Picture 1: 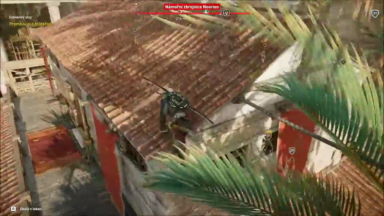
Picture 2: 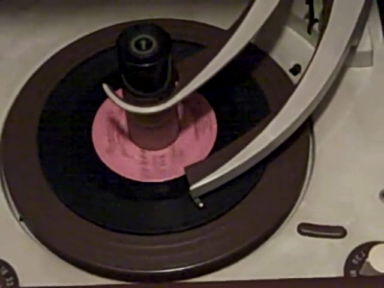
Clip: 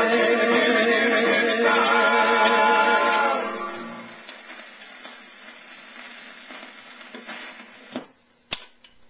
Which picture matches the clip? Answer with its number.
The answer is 2